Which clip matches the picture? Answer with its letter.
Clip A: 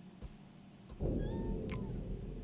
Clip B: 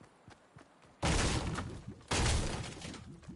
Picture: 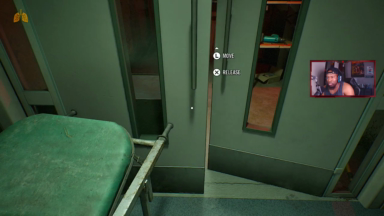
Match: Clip A